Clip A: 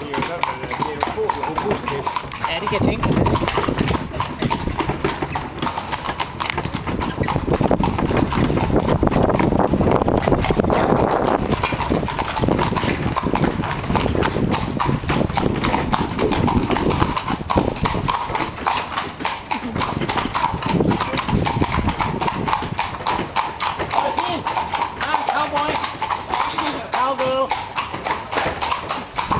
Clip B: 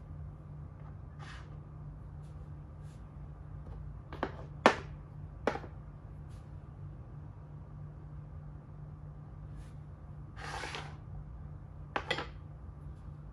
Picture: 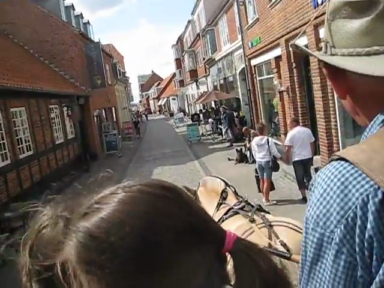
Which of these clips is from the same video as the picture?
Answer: A